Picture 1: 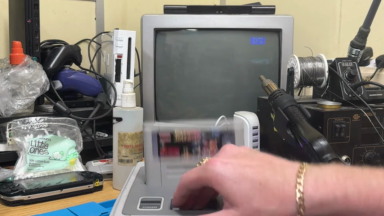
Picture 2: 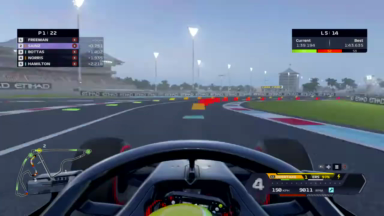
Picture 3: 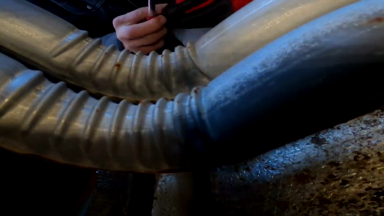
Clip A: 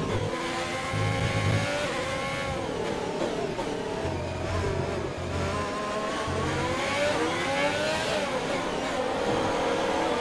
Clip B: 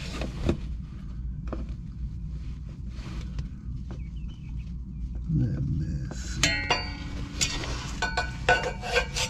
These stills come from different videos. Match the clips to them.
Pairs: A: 2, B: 3